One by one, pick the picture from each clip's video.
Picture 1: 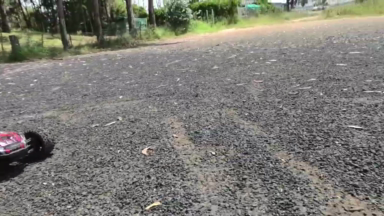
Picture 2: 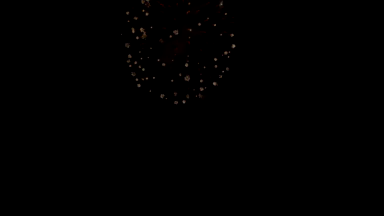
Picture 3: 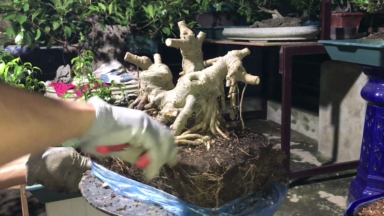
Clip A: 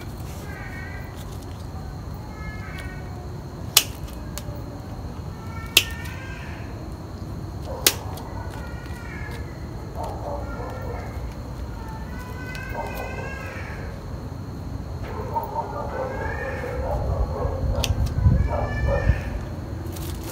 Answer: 3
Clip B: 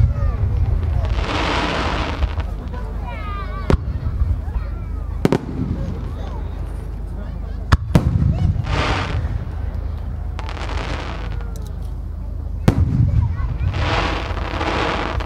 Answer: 2